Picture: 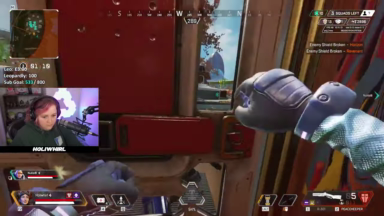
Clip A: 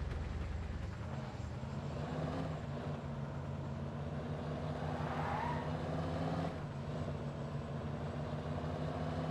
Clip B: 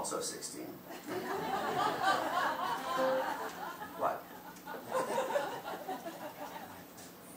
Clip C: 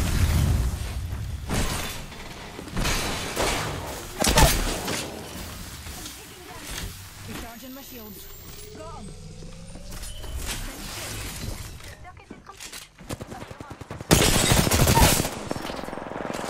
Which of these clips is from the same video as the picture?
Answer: C